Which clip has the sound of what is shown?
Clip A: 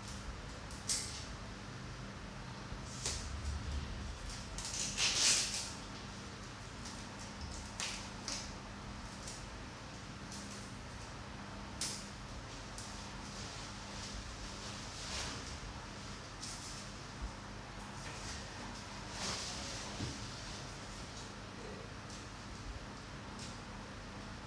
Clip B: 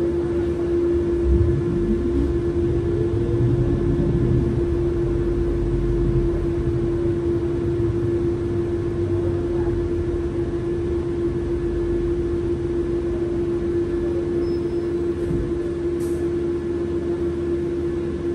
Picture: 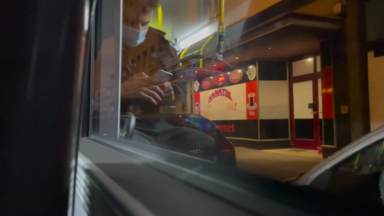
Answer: B